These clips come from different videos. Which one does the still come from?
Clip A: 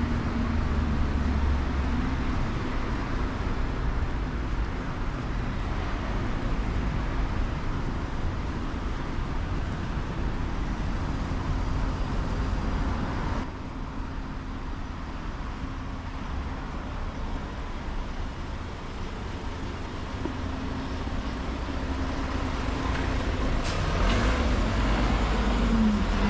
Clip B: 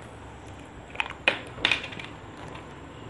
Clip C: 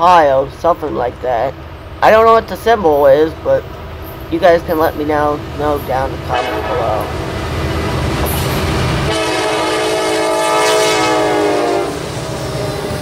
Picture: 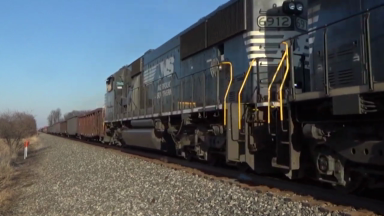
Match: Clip C